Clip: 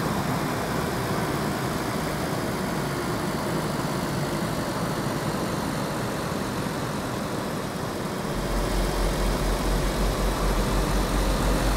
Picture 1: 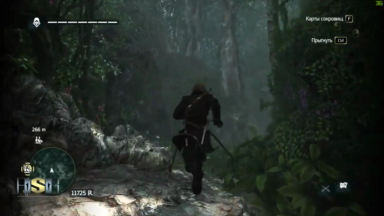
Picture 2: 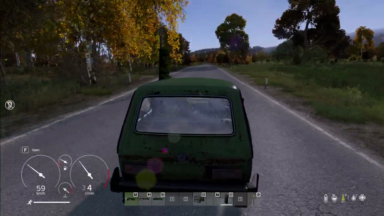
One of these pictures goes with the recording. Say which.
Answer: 2